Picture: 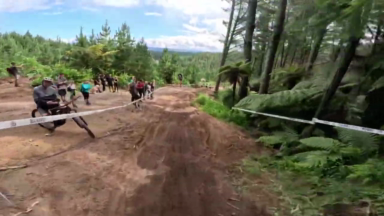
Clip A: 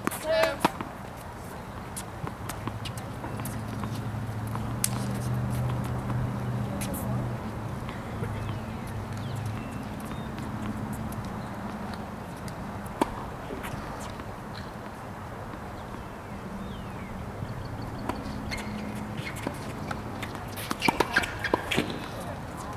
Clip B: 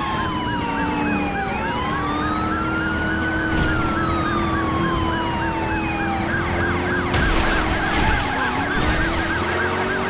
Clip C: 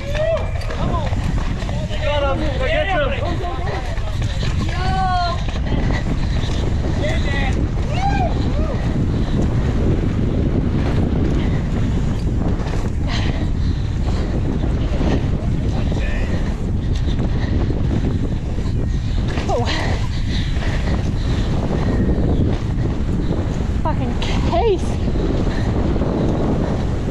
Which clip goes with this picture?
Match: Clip C